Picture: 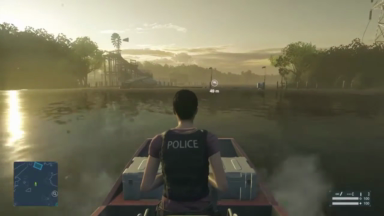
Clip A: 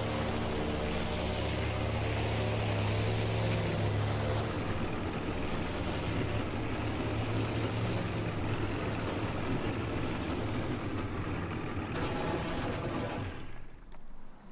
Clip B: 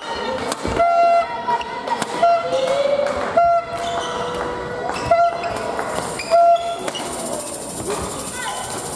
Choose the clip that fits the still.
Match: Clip A